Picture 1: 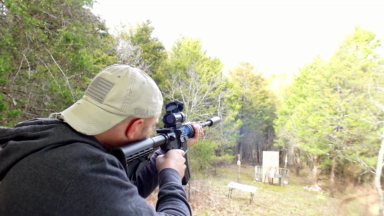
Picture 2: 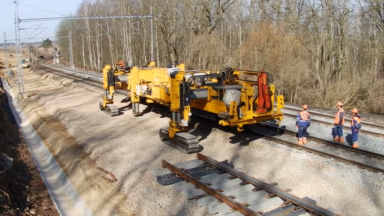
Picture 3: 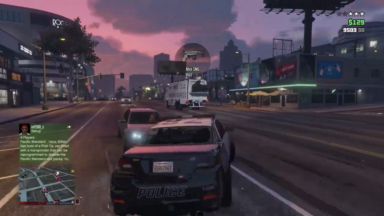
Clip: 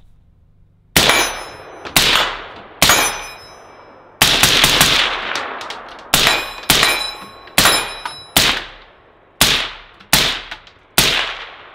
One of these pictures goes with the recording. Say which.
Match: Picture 1